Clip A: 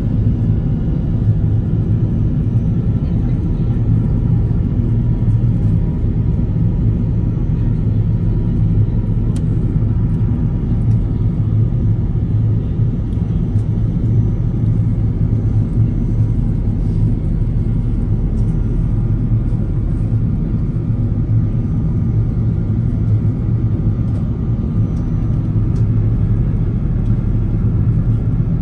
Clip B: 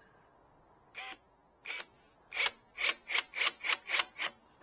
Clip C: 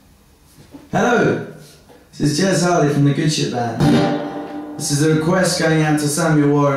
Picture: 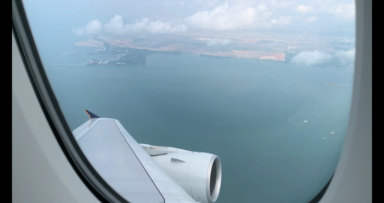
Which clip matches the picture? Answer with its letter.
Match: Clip A